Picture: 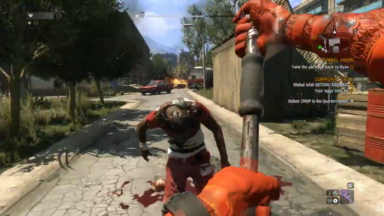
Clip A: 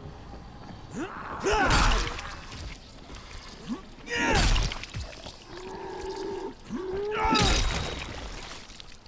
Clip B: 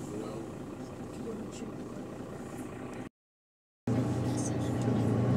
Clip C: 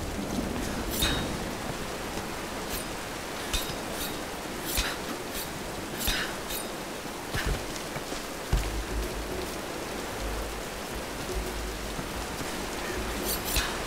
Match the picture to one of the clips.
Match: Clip A